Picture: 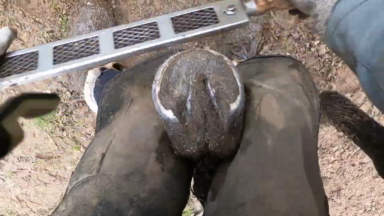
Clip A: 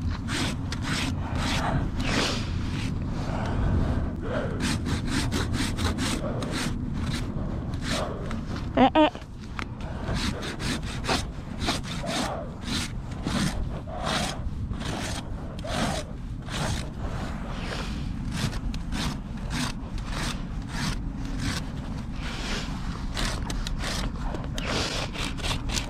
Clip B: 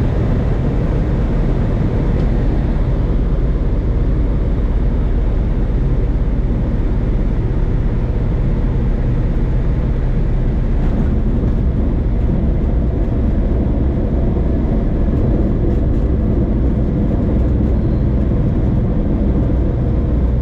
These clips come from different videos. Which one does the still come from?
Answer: A